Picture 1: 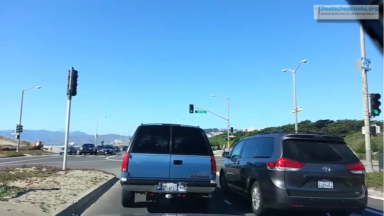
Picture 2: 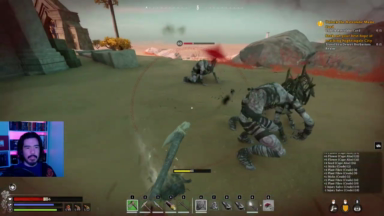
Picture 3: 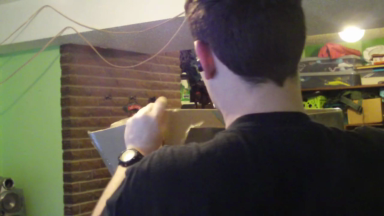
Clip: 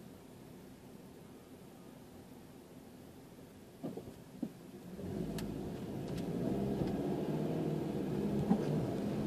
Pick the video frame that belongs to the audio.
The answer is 1